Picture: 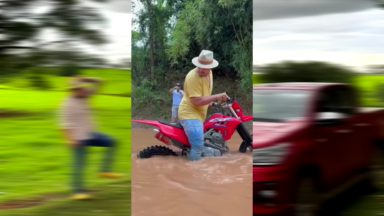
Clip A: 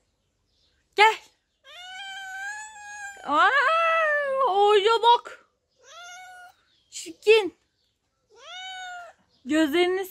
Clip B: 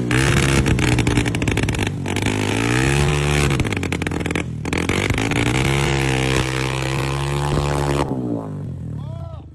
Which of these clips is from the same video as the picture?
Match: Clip B